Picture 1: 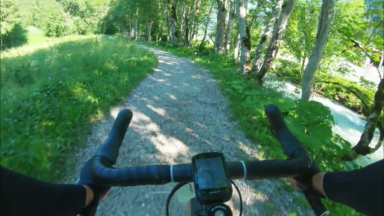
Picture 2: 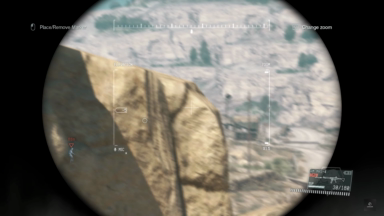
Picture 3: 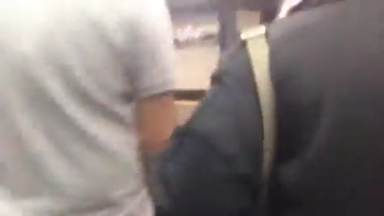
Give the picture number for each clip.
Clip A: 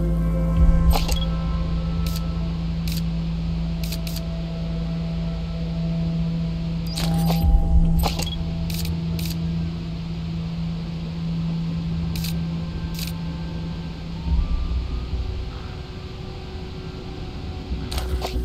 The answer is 2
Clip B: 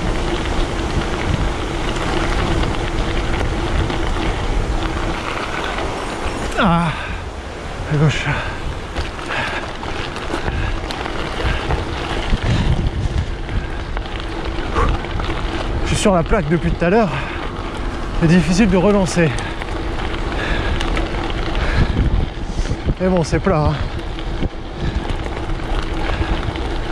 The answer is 1